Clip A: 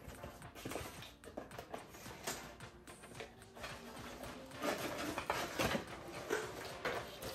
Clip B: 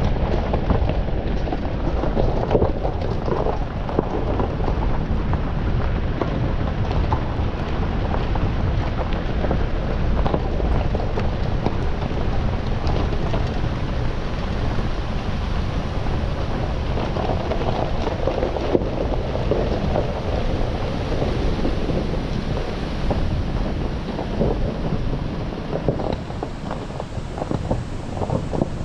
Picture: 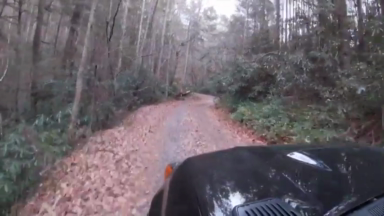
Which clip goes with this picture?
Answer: B